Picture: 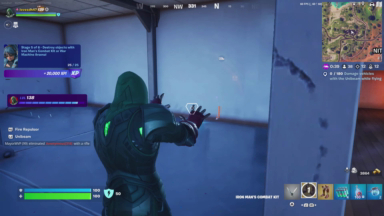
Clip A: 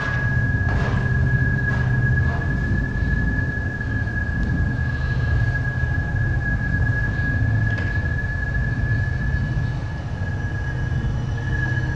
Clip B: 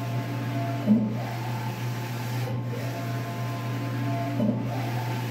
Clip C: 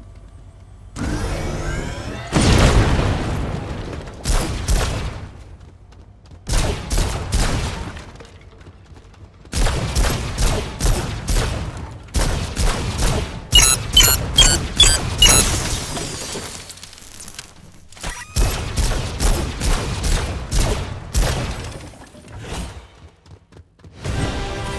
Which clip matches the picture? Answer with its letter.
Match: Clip C